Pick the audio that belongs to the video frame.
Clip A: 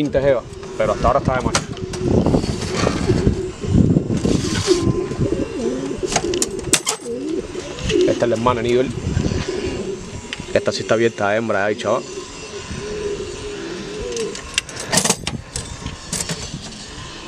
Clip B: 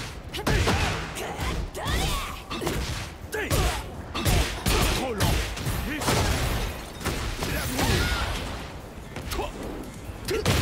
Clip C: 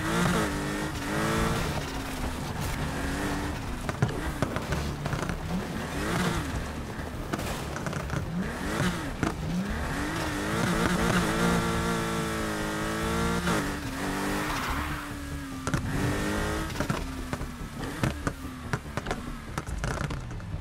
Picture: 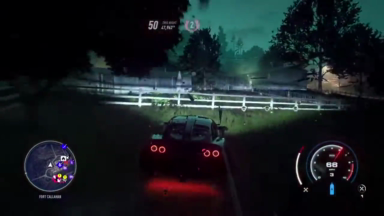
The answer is C